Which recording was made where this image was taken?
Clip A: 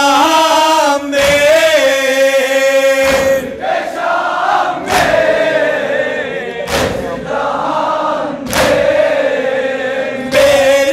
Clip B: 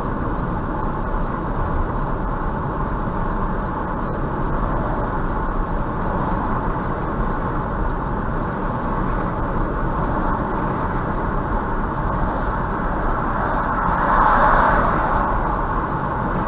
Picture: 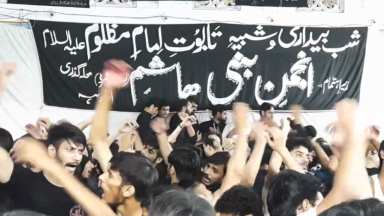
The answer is A